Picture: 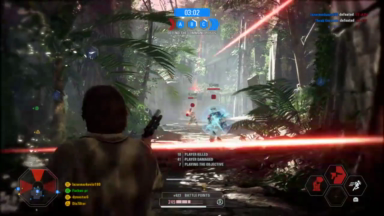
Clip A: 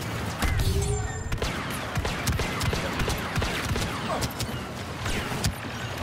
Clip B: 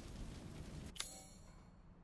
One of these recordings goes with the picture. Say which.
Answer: A